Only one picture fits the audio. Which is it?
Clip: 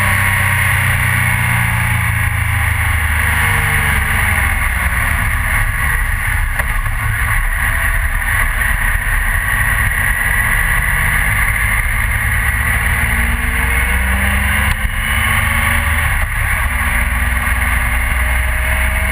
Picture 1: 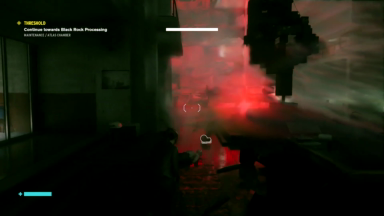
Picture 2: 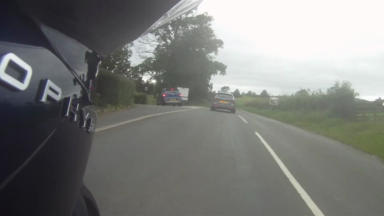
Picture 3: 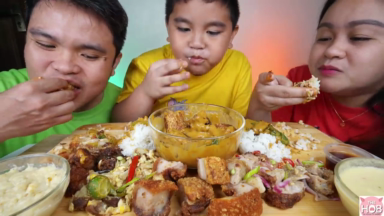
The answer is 2